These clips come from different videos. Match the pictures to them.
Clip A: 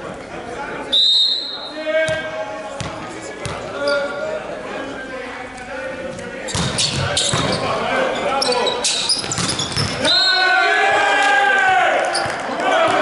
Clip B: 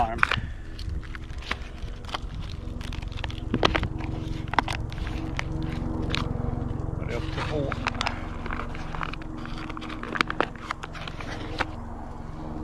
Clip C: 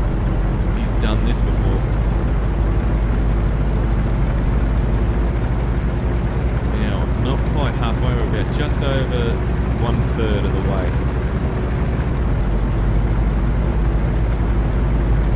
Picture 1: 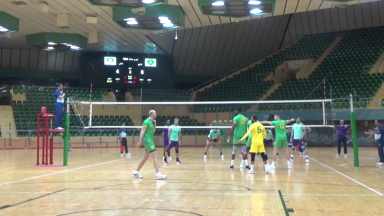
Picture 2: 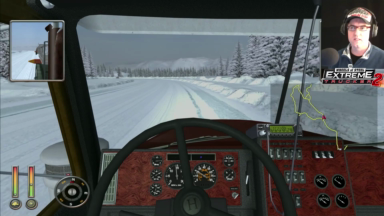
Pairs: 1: A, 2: C